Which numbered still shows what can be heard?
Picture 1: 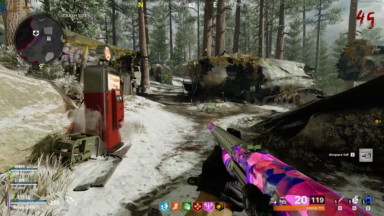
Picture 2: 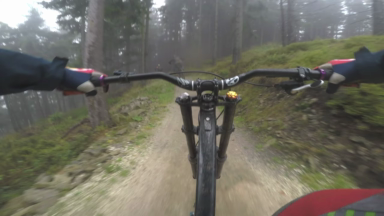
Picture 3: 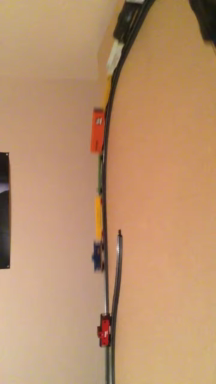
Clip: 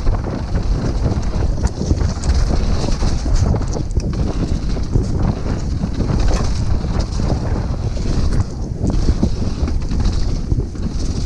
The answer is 2